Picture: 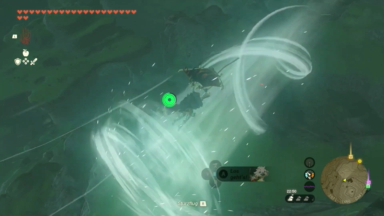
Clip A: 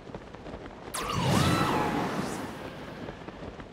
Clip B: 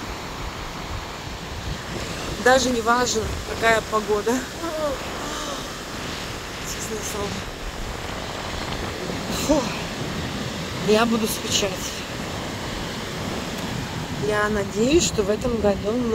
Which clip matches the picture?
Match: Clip A